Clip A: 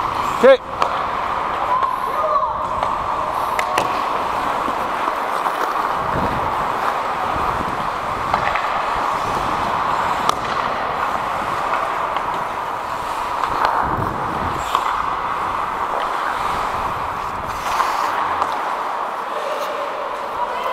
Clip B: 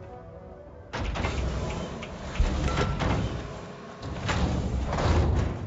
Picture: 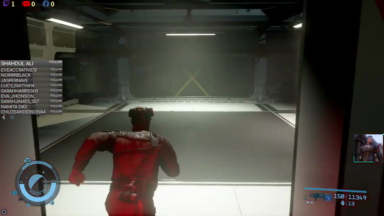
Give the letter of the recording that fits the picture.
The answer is B